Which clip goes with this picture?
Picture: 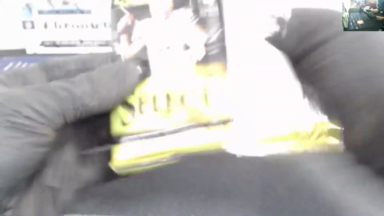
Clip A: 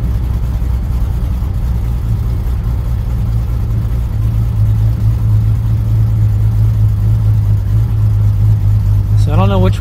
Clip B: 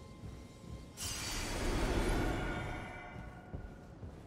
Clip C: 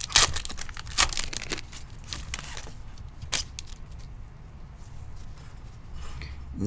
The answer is C